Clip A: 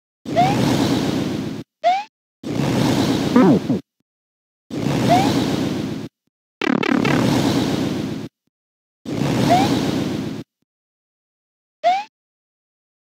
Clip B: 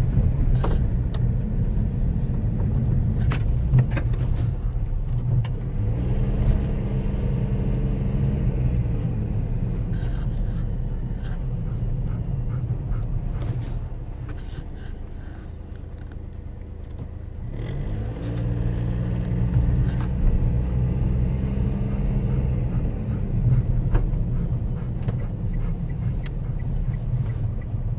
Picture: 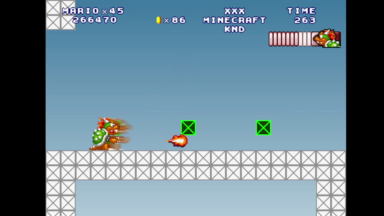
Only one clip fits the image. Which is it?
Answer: A